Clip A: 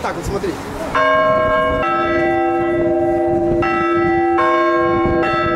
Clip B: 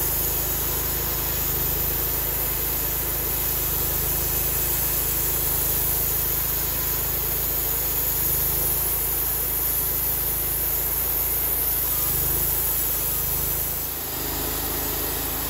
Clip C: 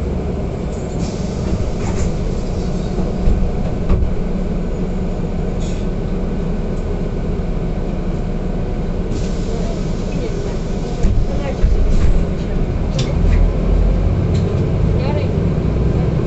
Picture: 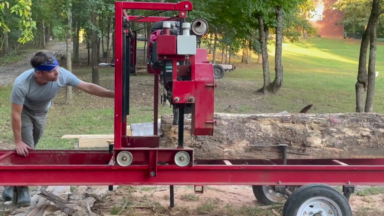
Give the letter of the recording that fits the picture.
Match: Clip B